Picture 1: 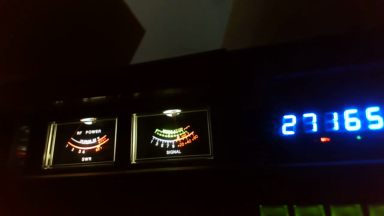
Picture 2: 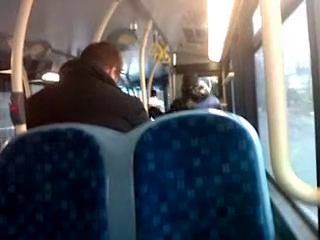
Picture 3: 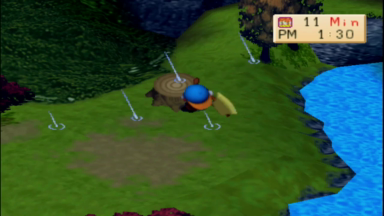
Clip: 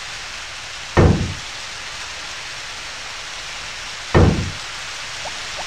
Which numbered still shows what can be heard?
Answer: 3